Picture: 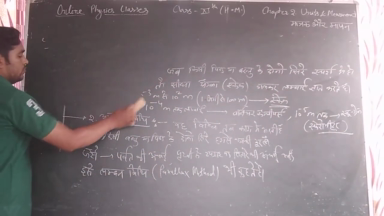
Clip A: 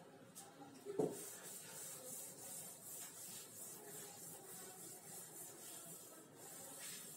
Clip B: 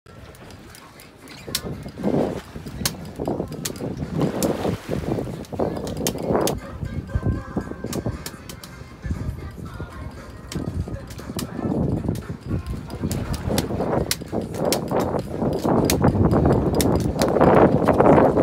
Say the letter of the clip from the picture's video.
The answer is A